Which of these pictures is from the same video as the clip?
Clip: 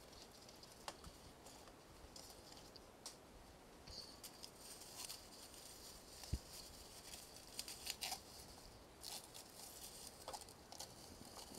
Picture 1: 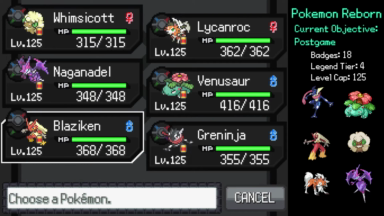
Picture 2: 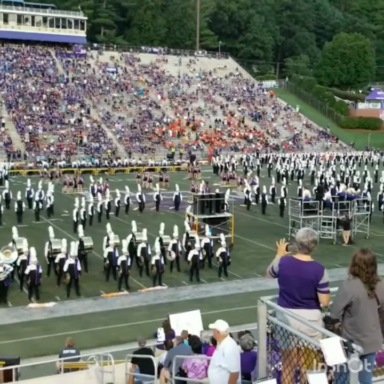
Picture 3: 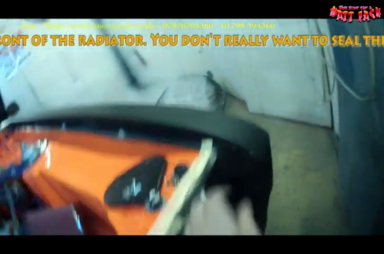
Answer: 3